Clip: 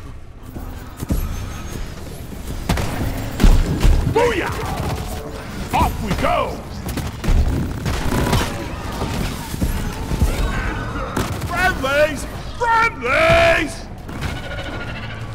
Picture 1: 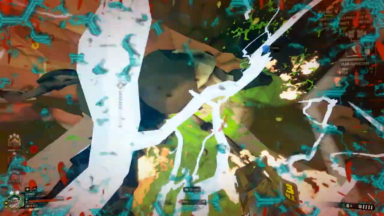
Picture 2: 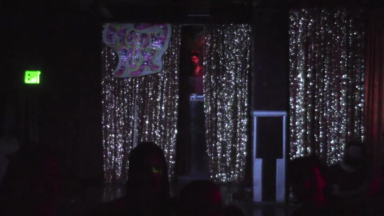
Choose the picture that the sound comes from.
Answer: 1